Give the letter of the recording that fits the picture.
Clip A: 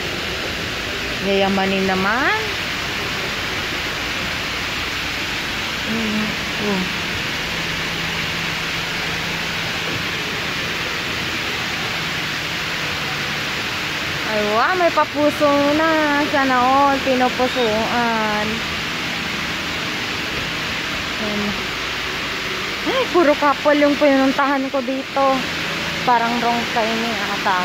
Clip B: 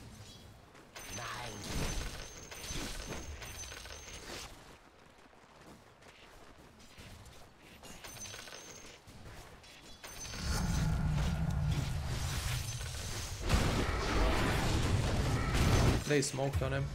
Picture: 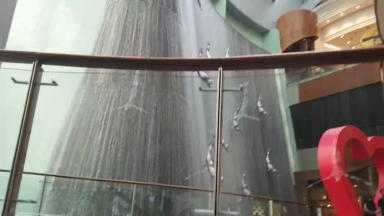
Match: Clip A